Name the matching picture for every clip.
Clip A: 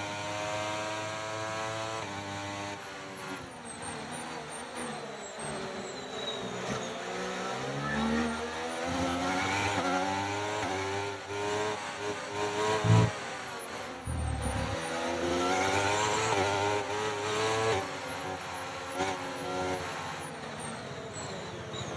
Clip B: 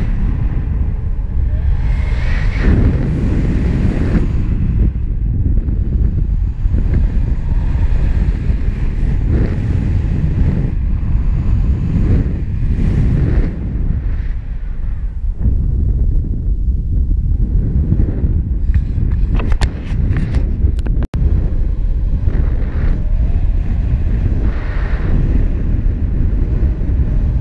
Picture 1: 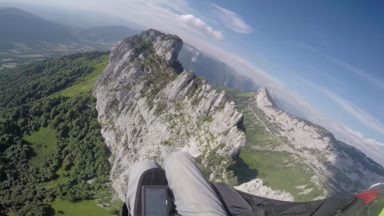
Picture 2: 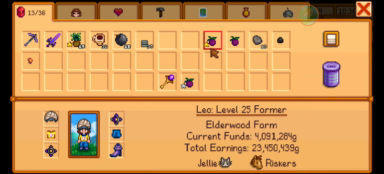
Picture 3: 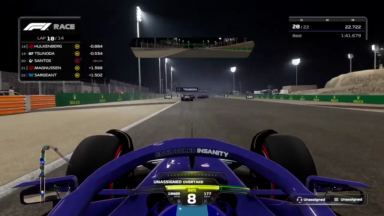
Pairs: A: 3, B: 1